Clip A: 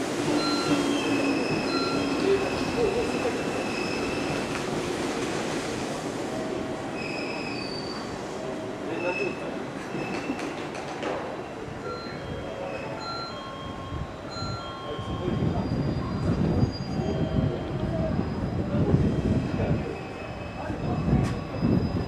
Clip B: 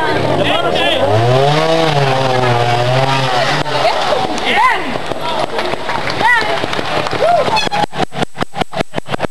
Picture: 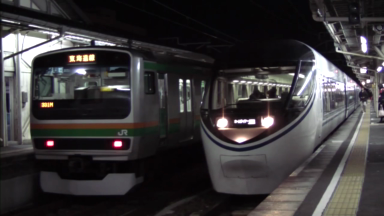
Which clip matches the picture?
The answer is A